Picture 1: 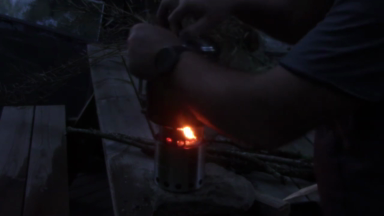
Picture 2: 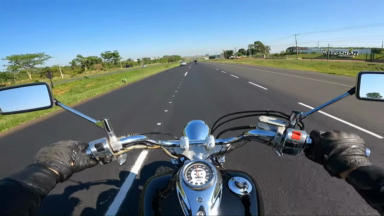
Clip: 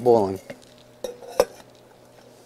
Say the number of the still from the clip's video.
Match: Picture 1